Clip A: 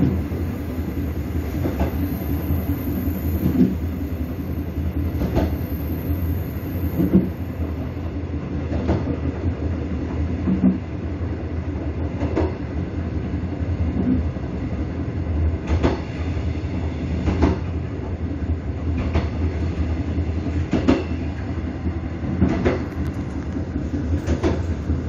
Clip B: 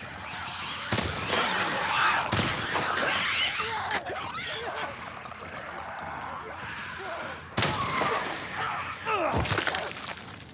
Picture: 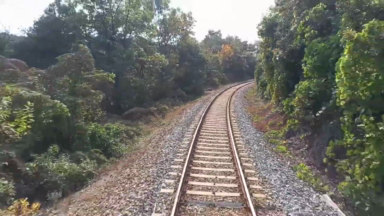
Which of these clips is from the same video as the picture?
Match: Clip A